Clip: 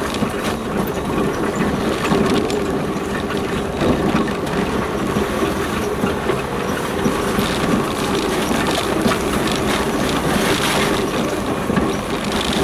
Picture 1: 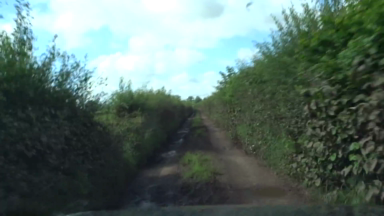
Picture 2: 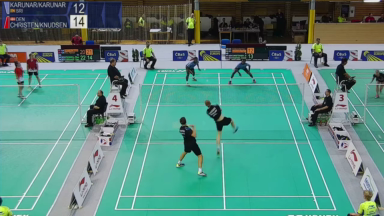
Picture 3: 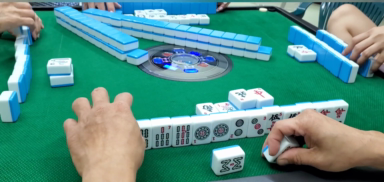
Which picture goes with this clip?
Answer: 1